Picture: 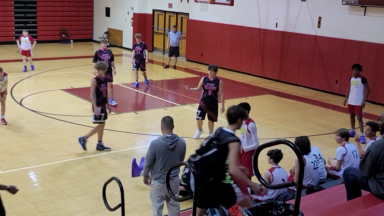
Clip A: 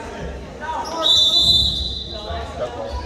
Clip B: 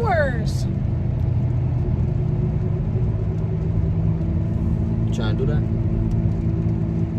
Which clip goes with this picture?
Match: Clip A